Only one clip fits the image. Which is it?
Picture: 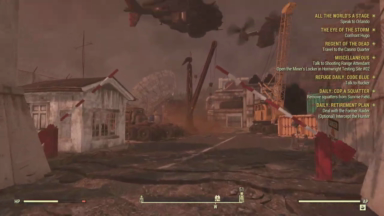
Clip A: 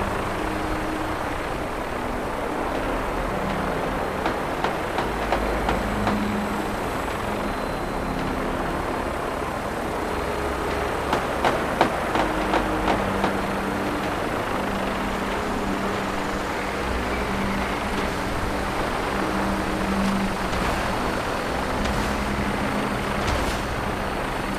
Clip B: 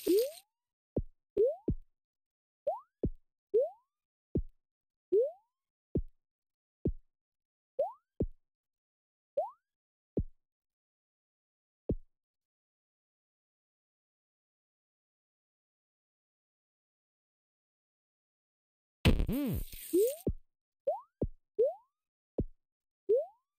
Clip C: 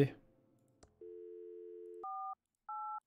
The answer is A